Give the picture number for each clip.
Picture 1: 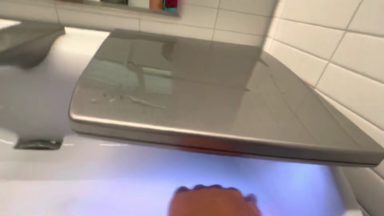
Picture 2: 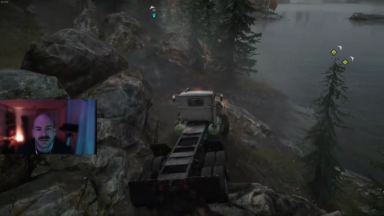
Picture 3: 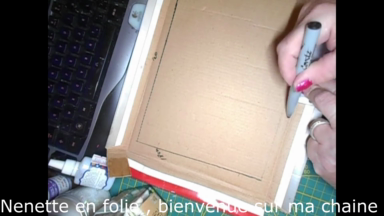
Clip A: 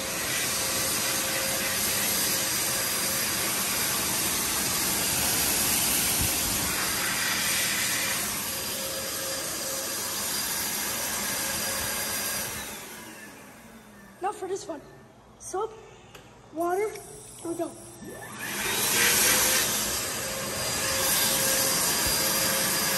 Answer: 1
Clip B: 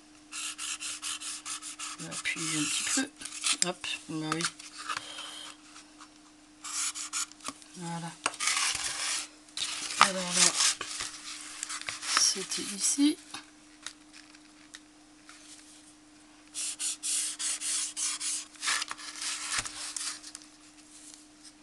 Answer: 3